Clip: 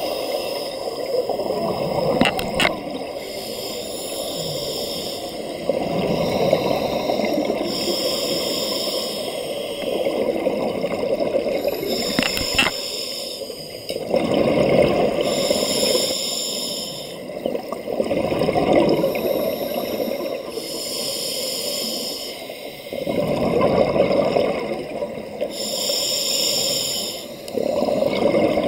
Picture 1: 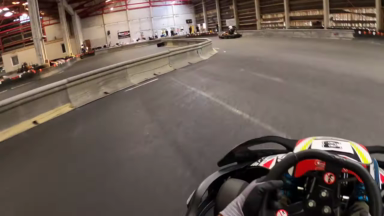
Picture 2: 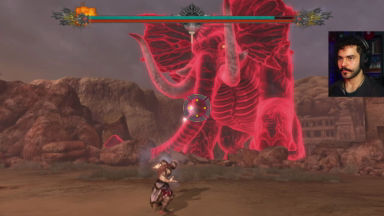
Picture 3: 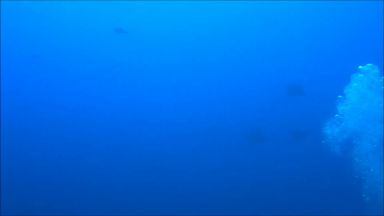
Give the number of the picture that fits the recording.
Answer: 3